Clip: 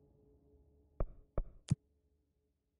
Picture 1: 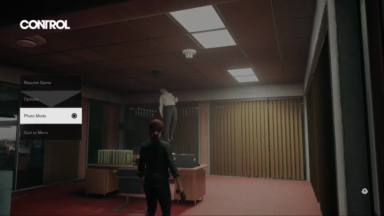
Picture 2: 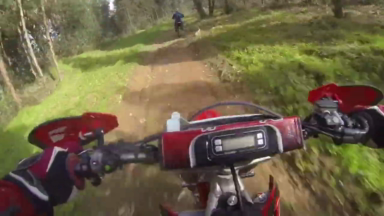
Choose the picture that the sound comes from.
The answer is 1